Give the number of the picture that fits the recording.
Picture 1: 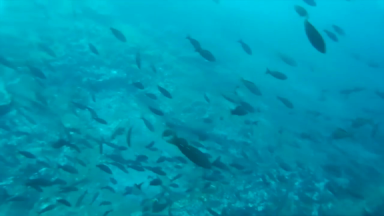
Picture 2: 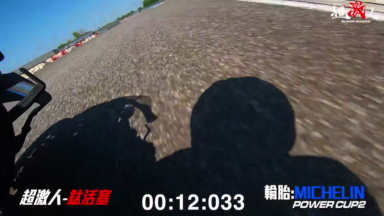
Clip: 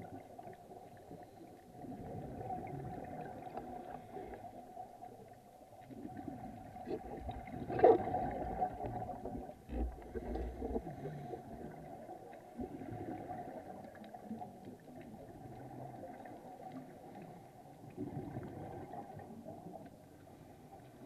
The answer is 1